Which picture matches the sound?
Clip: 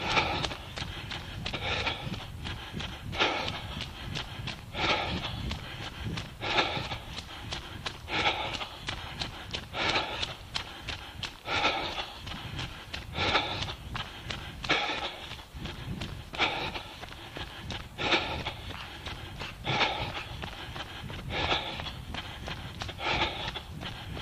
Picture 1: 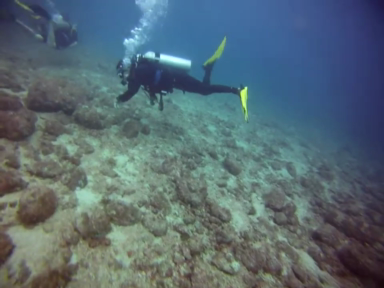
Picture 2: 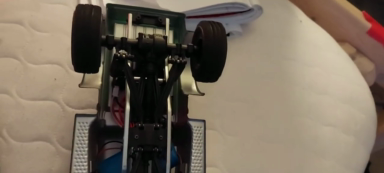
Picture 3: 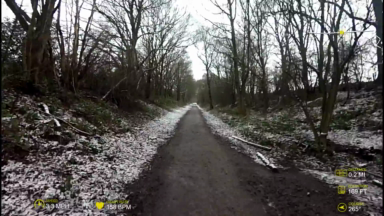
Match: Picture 3